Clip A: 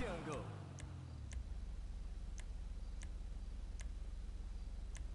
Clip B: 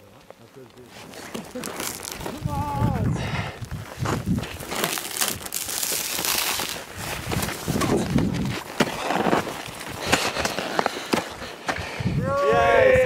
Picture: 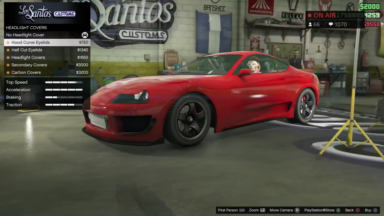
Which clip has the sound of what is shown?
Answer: A